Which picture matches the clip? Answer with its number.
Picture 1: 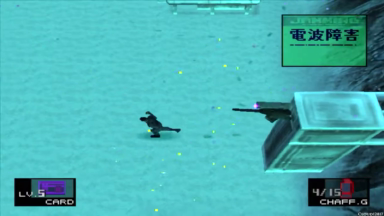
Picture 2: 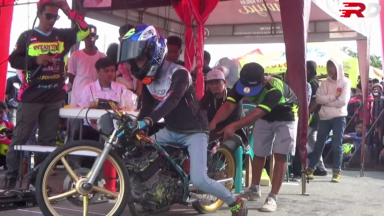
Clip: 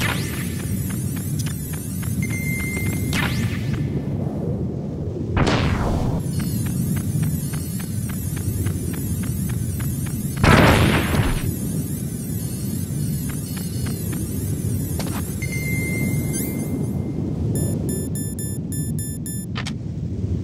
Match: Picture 1